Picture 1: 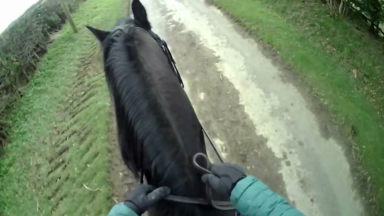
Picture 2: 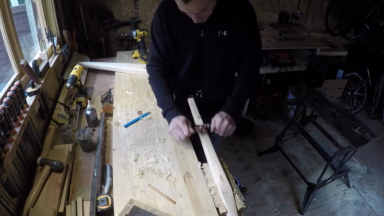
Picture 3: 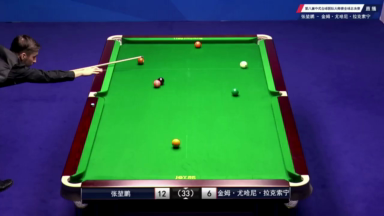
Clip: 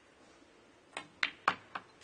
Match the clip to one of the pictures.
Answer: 3